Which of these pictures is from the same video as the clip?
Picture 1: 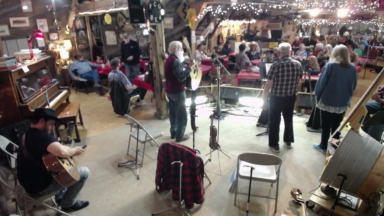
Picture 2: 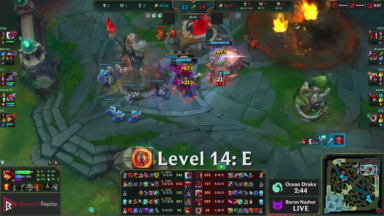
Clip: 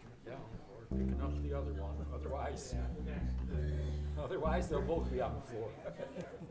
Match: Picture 1